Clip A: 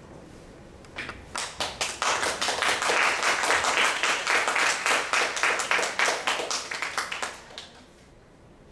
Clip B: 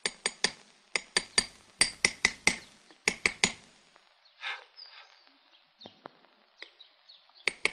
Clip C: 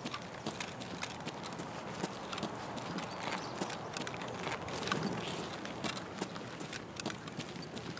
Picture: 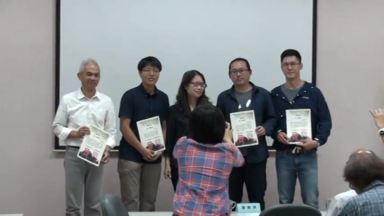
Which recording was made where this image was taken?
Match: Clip A